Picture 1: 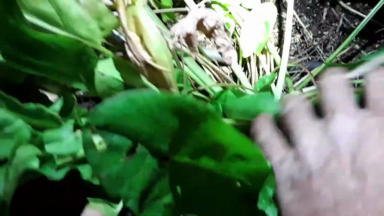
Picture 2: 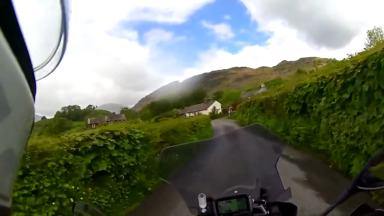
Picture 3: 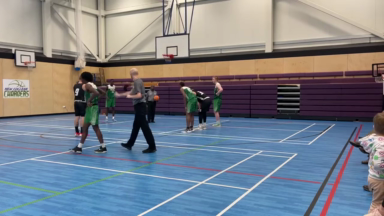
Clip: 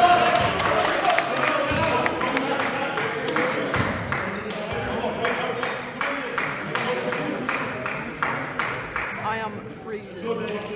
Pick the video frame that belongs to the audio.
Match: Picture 3